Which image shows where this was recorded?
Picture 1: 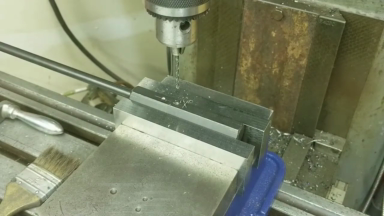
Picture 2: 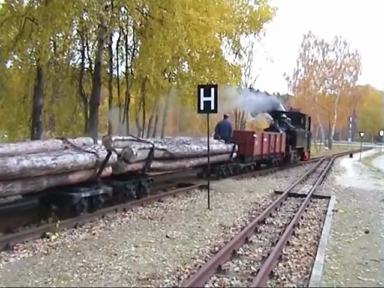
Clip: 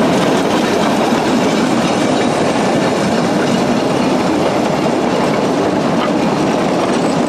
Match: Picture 2